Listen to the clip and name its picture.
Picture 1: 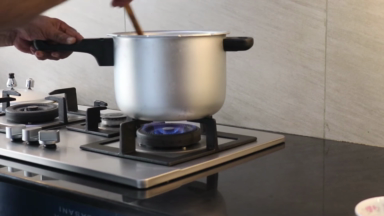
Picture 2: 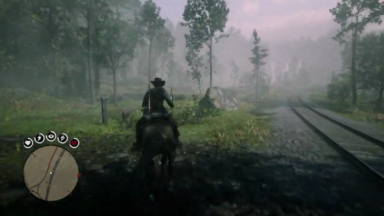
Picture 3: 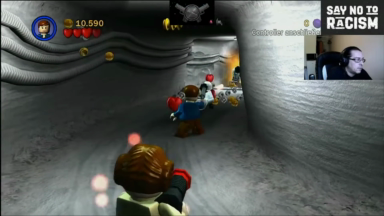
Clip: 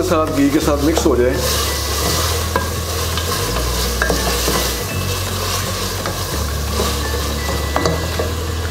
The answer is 1